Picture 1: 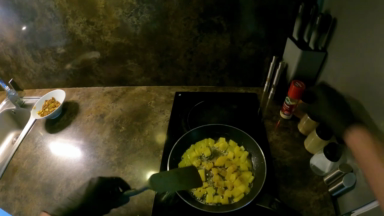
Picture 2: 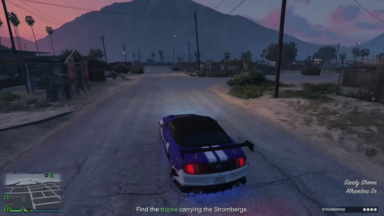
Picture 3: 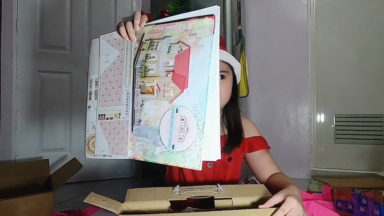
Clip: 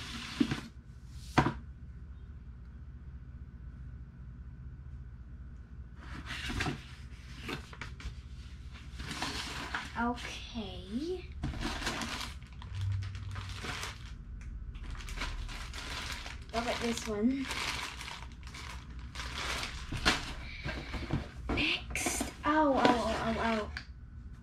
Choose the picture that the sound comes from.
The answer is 3